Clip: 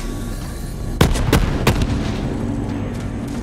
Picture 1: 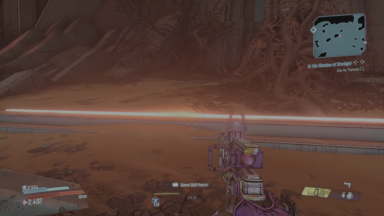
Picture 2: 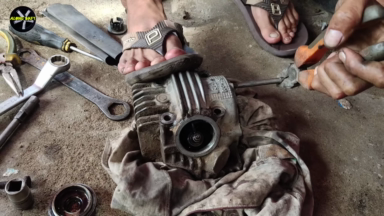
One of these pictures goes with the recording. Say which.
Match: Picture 1